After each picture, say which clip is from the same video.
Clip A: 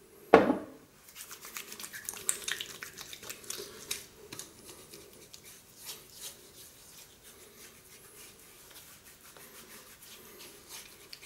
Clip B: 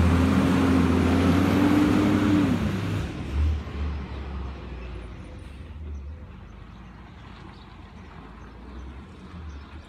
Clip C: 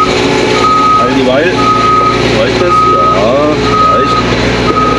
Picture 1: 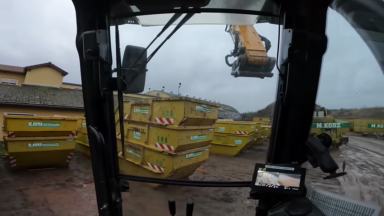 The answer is C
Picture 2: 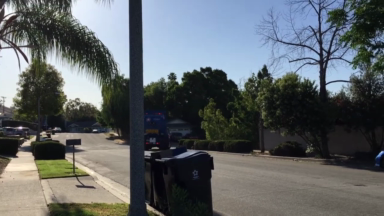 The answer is B